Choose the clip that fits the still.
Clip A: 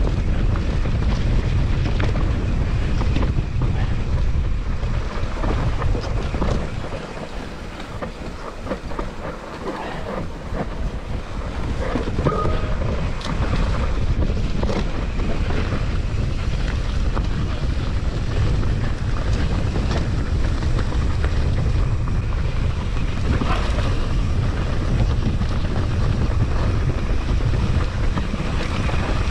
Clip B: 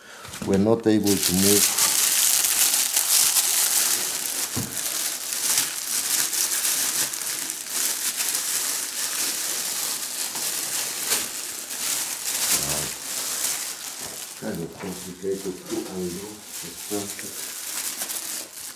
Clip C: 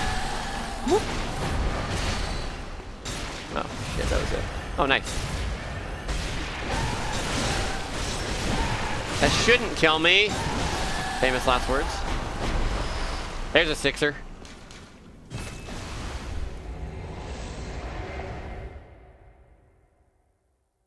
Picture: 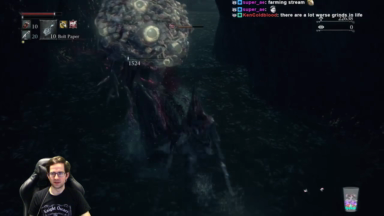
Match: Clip C